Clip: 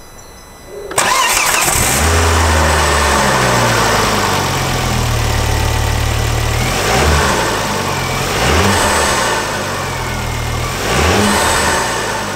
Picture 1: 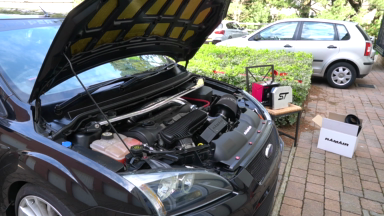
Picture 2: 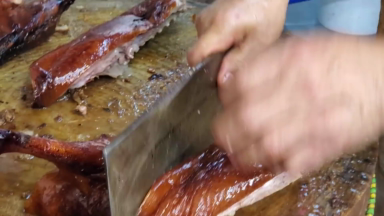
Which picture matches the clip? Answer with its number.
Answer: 1